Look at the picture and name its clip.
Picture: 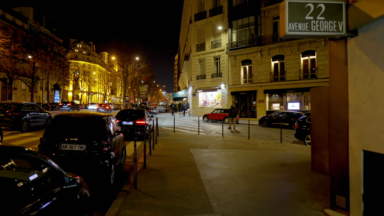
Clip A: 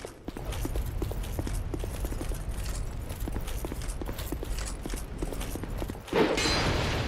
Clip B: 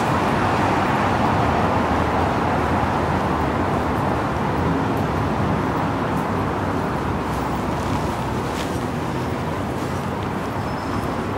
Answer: B